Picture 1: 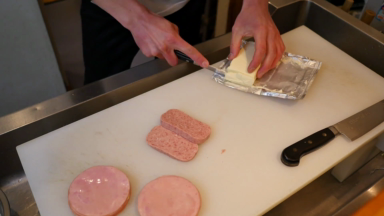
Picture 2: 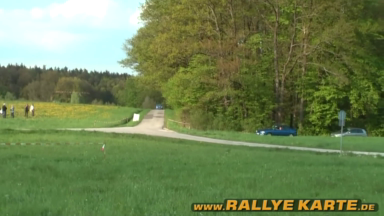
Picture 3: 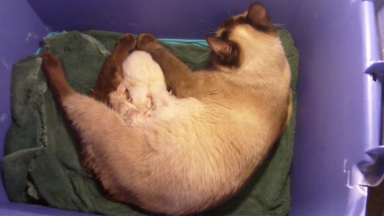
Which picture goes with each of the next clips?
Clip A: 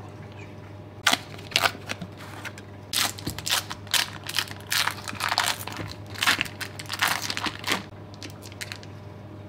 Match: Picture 1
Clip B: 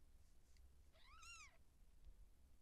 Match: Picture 3